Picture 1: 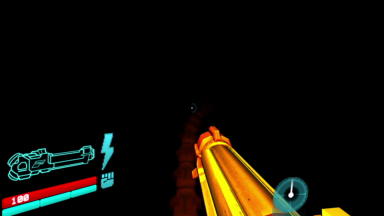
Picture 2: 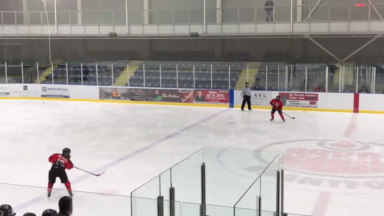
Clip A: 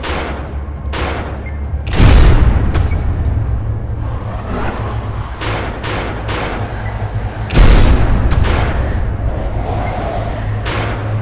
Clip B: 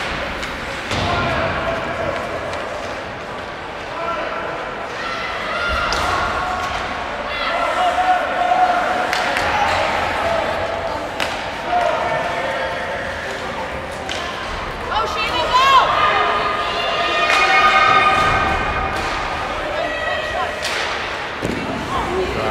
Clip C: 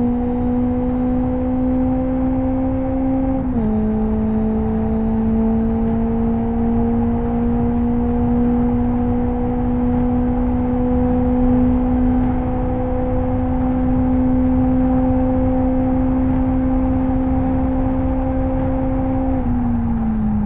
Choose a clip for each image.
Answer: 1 A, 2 B